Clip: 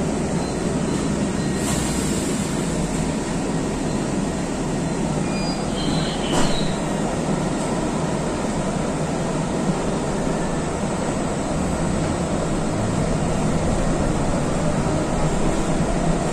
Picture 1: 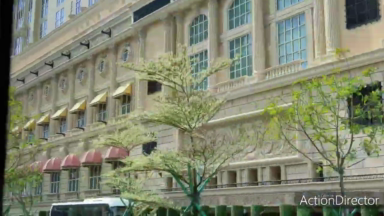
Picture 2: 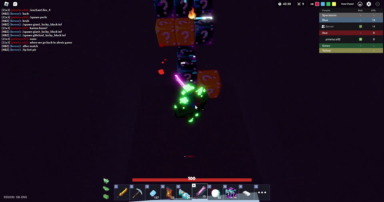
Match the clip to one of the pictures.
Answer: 1